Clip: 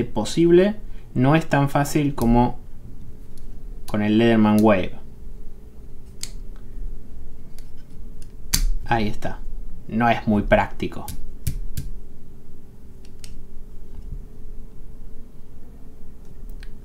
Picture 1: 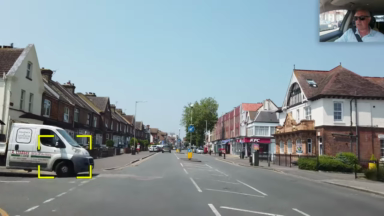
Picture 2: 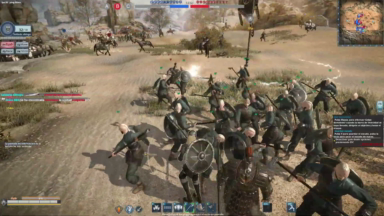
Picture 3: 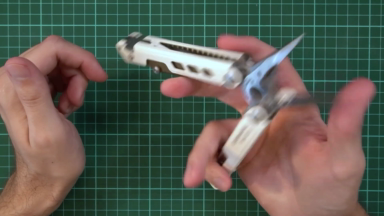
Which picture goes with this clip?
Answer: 3